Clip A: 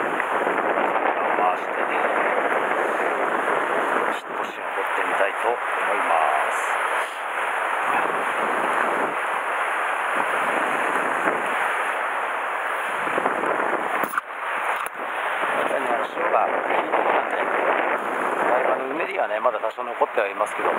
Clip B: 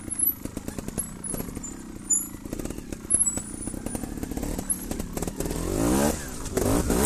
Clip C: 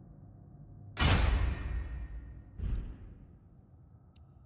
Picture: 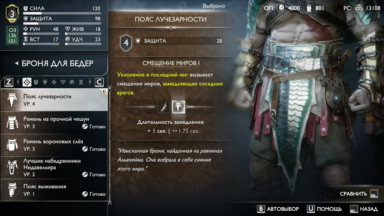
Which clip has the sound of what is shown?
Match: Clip C